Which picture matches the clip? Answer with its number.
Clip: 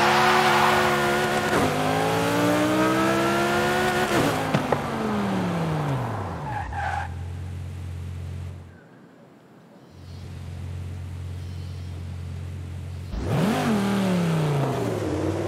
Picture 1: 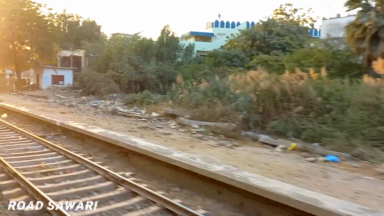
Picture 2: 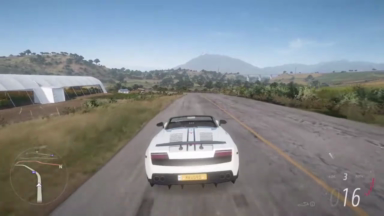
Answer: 2